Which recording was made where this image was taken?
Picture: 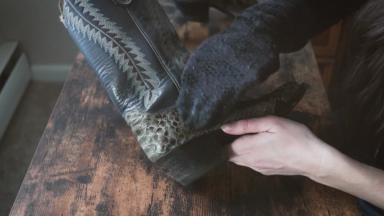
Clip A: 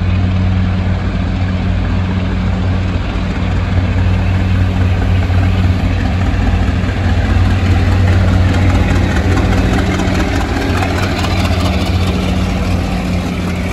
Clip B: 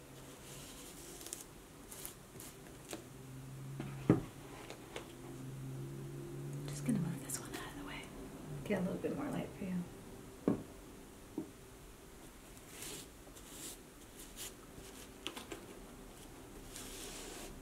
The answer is B